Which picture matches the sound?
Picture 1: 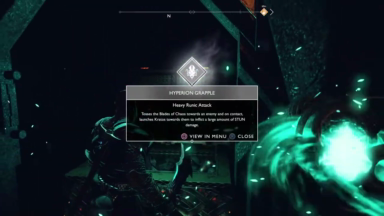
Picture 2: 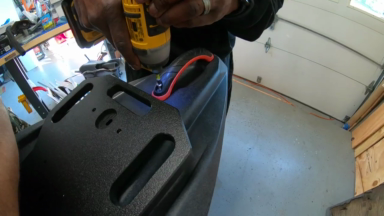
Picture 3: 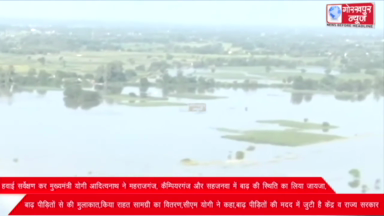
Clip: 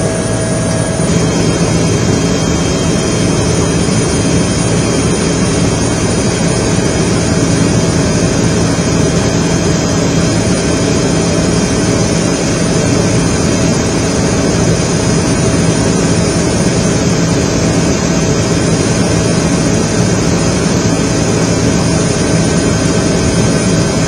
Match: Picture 3